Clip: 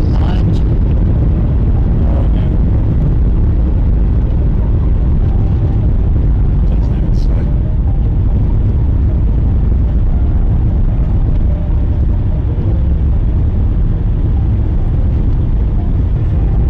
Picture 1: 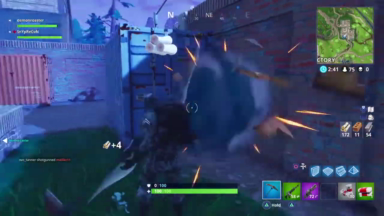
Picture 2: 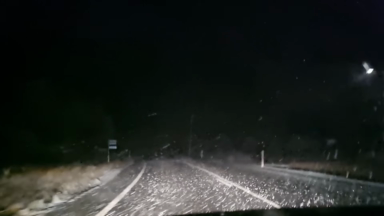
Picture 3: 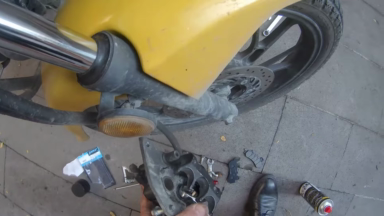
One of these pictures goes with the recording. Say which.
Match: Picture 2